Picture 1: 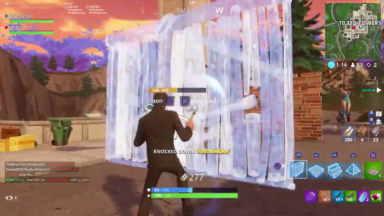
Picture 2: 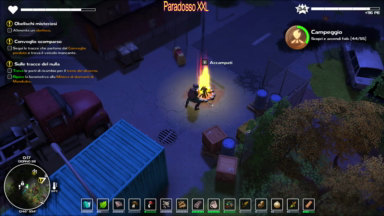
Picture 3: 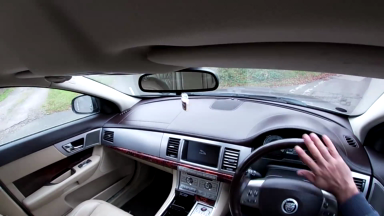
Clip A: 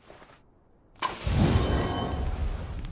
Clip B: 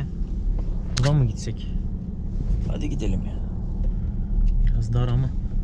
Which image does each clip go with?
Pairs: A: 2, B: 3